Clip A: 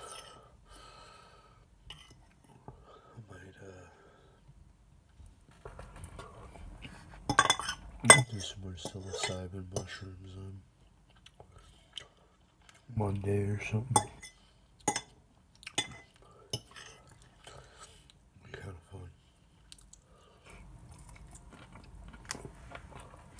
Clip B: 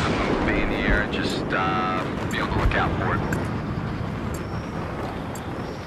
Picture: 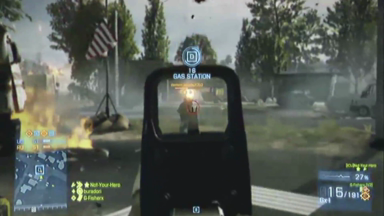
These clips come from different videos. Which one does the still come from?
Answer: B